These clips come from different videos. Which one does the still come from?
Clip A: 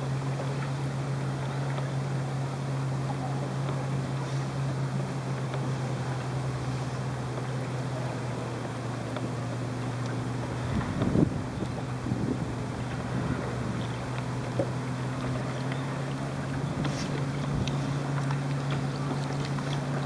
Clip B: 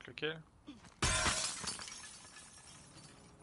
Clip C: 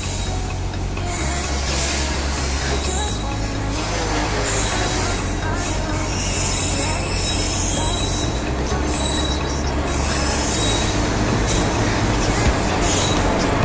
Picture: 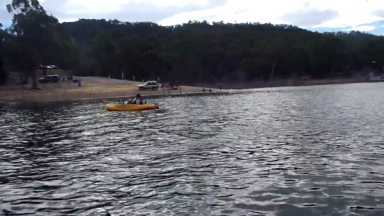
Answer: A